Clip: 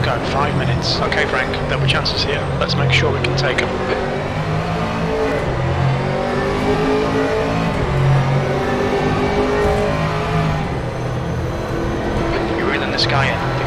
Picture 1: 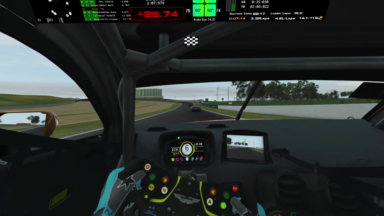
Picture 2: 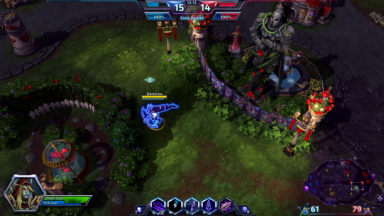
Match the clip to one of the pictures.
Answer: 1